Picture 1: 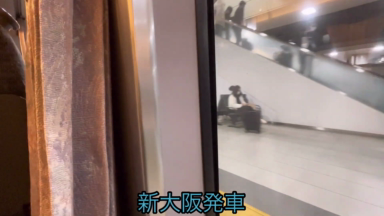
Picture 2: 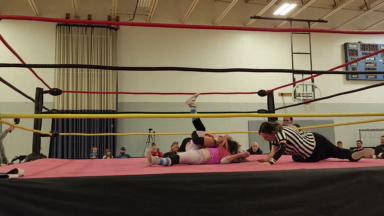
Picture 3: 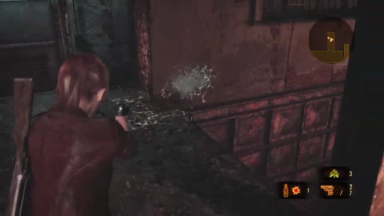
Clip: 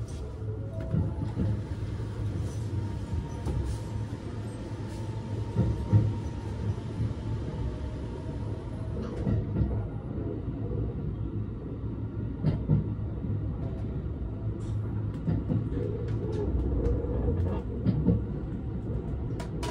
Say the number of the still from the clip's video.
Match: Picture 1